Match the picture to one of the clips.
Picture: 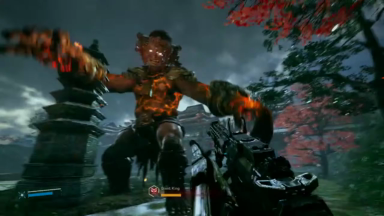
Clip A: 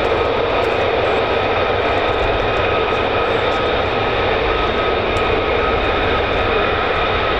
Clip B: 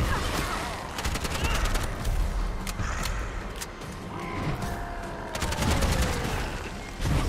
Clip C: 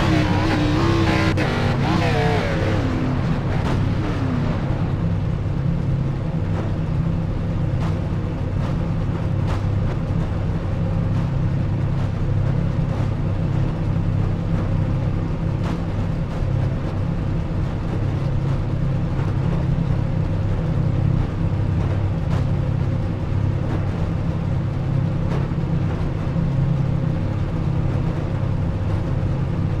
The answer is B